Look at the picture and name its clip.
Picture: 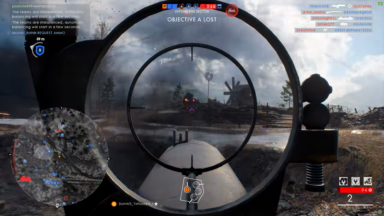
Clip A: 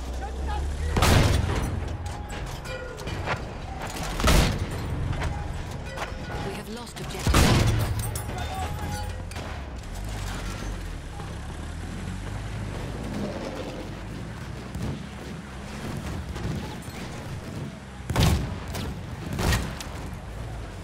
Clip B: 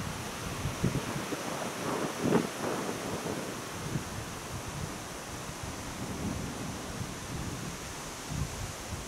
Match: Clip A